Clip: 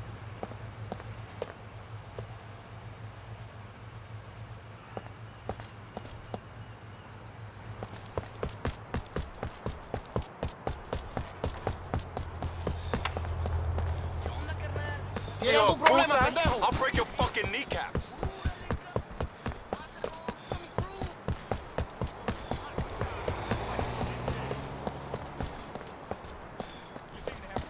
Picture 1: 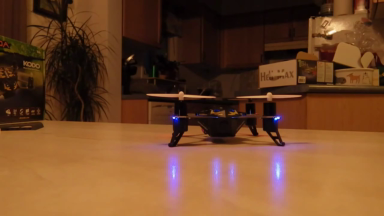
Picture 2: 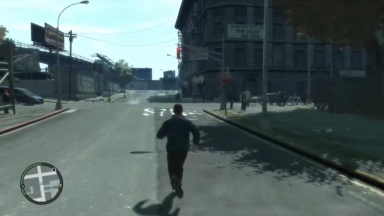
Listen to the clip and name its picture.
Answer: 2